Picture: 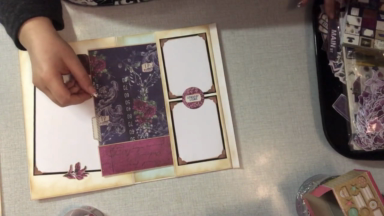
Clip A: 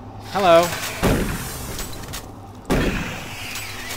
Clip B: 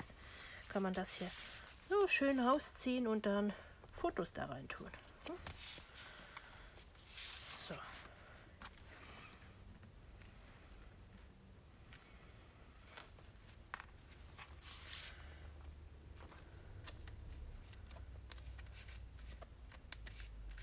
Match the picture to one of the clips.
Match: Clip B